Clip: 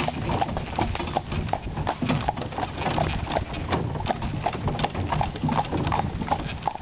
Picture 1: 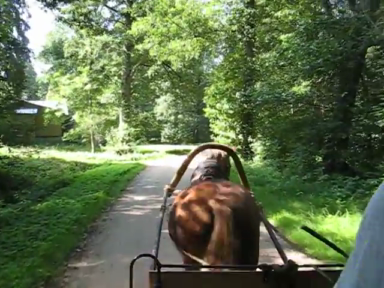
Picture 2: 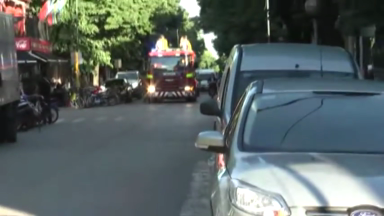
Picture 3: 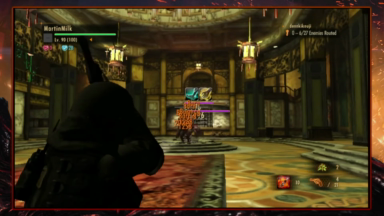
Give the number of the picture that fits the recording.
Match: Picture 1